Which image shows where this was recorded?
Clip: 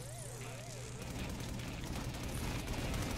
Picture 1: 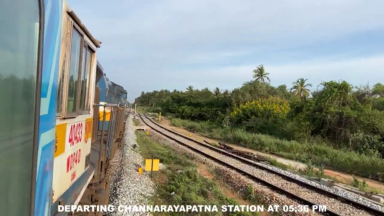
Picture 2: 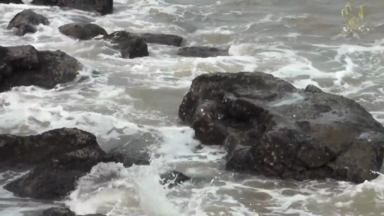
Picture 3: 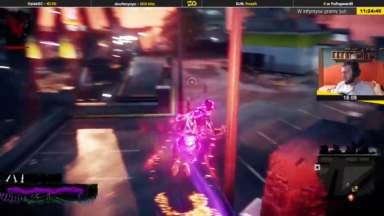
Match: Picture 3